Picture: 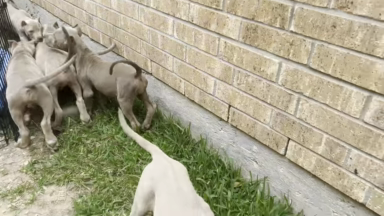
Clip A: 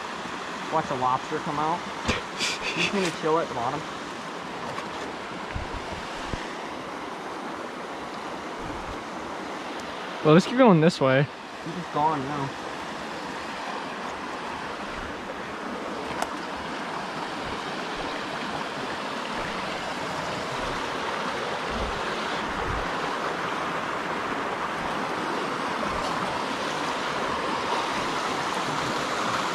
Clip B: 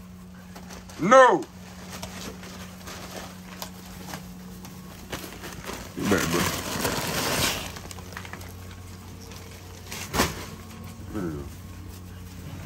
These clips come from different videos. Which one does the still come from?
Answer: B